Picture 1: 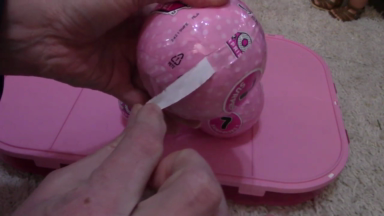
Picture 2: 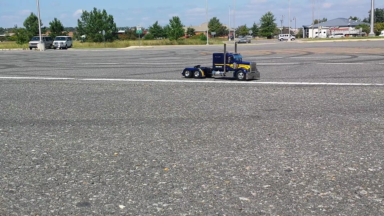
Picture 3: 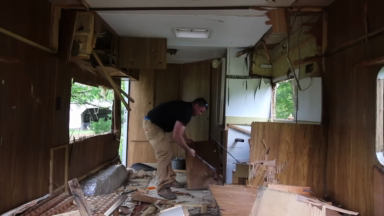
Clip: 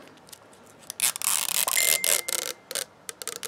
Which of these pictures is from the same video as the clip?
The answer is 1